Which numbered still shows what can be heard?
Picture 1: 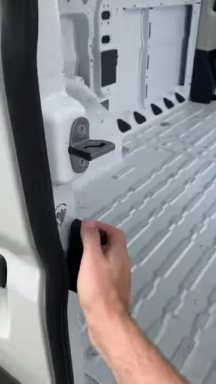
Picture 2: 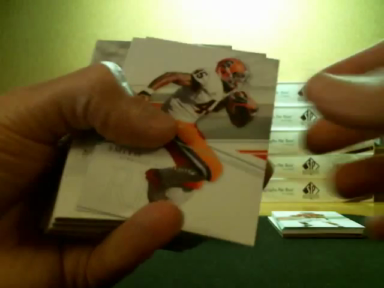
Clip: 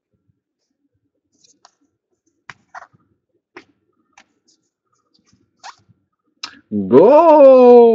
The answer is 2